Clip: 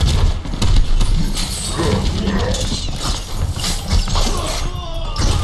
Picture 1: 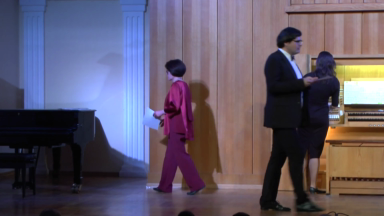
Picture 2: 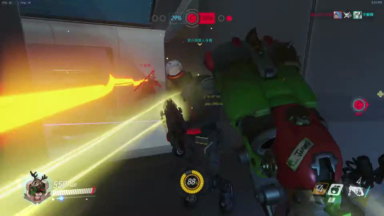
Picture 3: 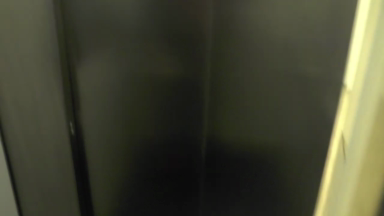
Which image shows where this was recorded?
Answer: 2